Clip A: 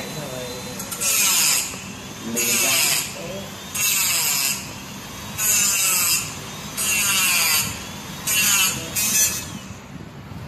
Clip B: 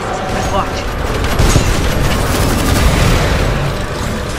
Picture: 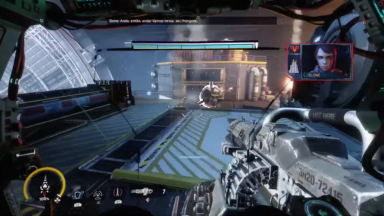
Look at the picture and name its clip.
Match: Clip B